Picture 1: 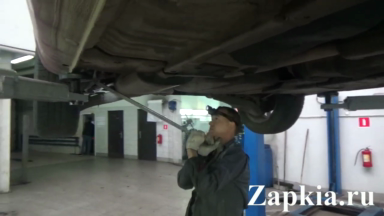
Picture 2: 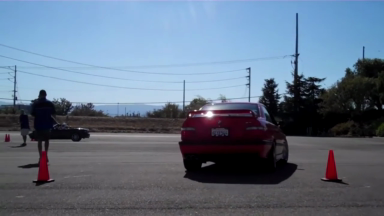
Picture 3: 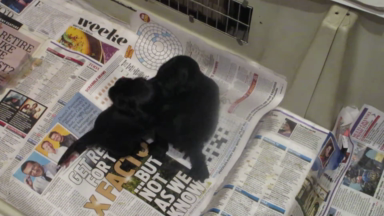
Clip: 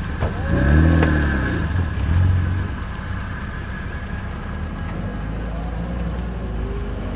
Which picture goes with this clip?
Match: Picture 2